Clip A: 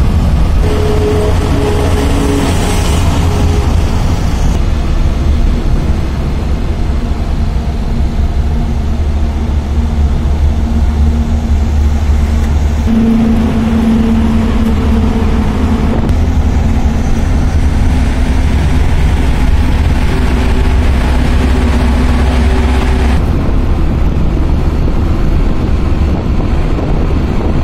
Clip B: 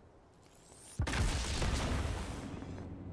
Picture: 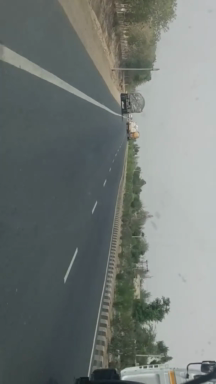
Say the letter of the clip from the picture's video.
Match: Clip A